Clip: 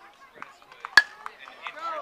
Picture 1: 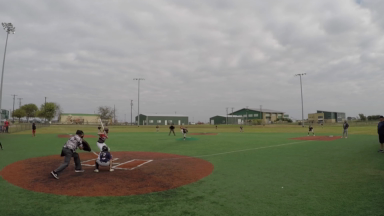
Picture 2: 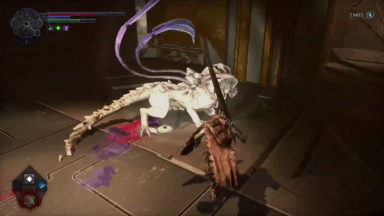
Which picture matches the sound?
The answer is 1